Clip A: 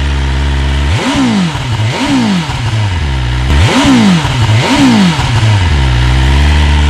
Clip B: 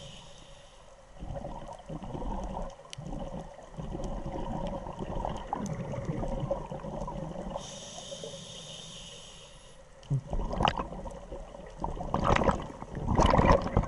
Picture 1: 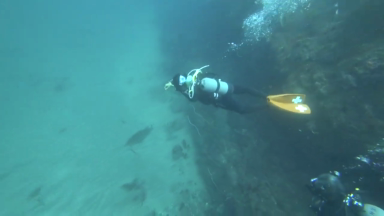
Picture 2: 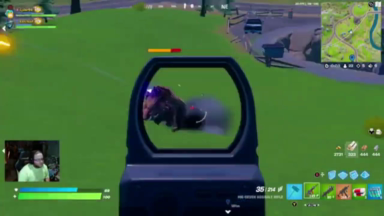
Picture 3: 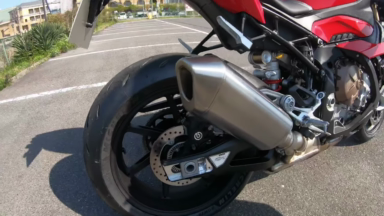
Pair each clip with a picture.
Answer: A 3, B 1